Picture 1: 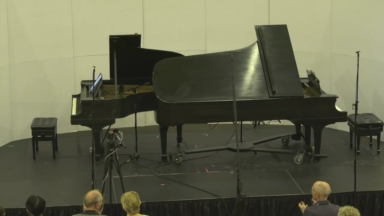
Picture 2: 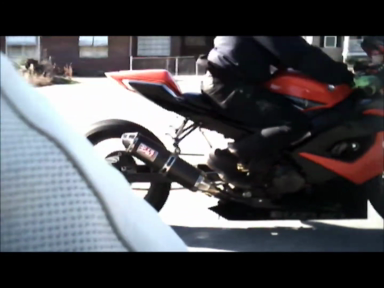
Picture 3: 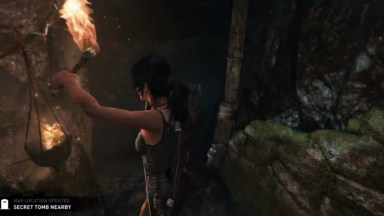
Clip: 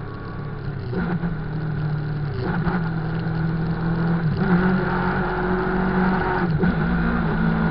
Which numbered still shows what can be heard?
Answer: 2